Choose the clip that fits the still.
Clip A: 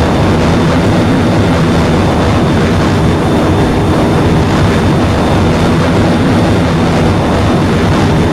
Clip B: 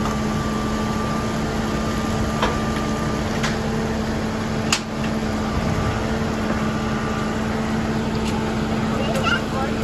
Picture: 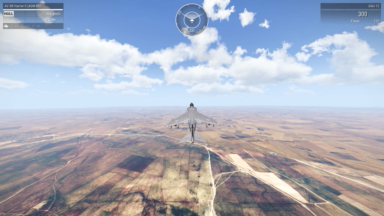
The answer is A